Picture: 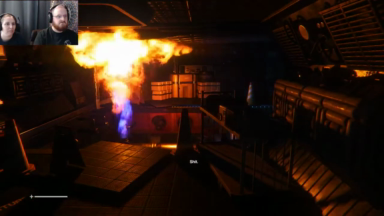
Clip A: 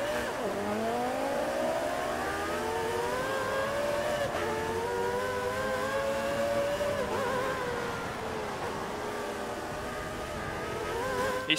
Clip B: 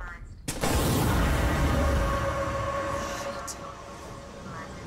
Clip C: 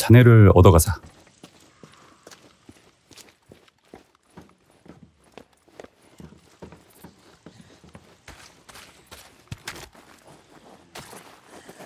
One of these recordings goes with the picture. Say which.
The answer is B